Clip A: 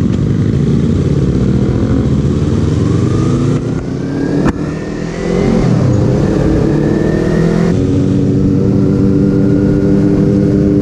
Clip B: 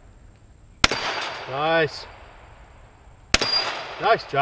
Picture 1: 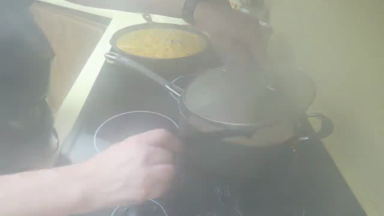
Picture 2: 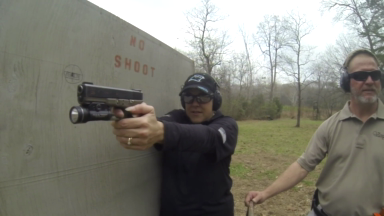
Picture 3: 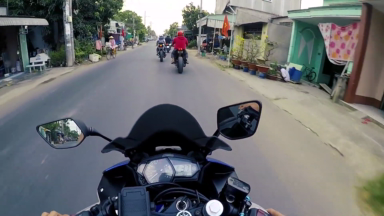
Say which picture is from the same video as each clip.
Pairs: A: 3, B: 2